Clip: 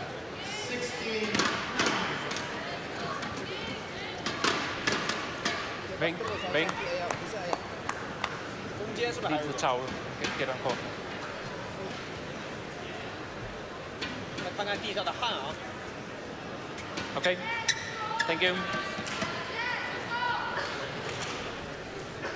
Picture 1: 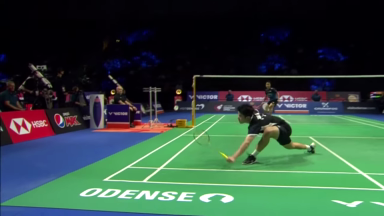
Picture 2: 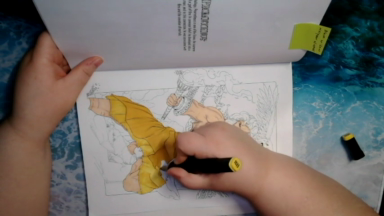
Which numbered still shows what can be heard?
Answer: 1